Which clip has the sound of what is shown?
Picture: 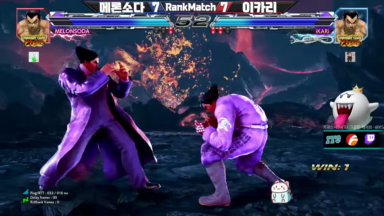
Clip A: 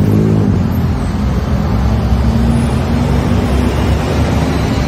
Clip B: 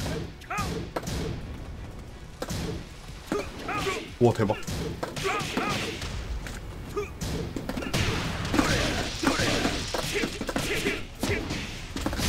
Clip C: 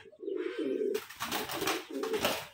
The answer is B